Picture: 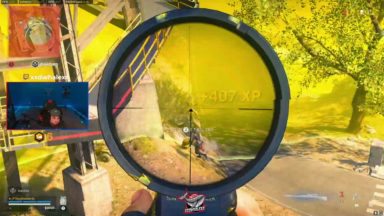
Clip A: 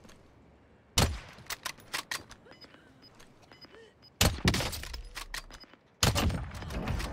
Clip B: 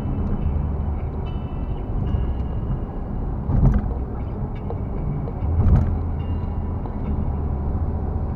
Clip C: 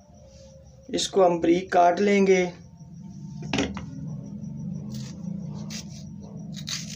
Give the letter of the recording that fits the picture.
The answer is A